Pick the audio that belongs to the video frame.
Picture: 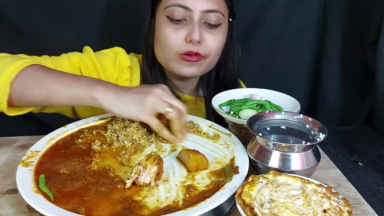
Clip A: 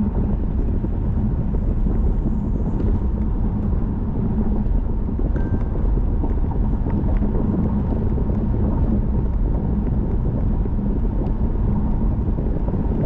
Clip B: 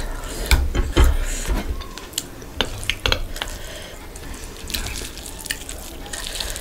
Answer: B